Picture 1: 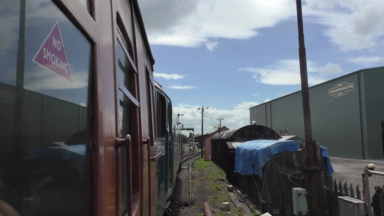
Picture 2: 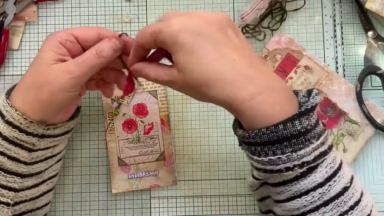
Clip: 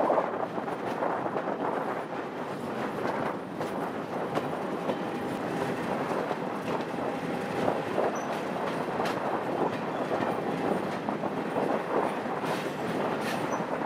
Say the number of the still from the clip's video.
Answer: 1